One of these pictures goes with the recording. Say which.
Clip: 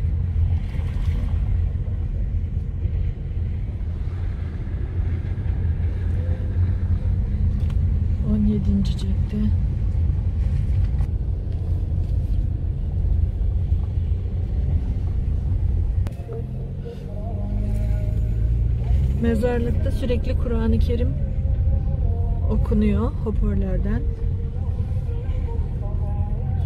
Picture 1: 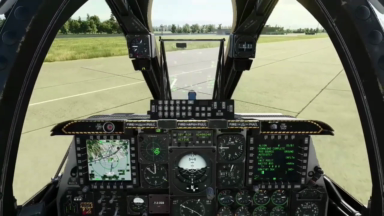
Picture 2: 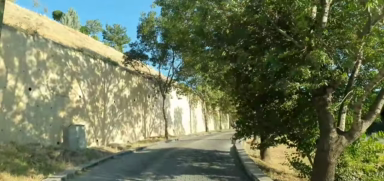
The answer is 2